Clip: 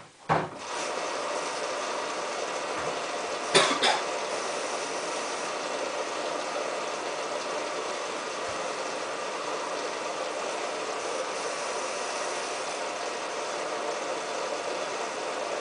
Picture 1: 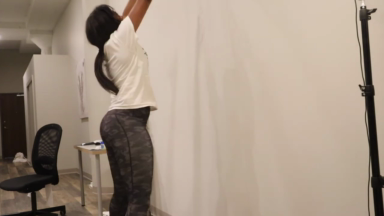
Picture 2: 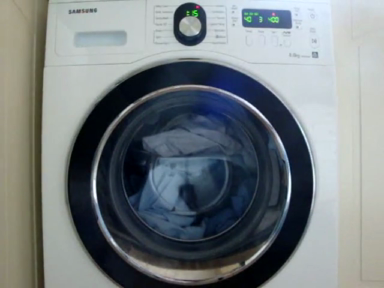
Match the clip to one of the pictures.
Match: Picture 2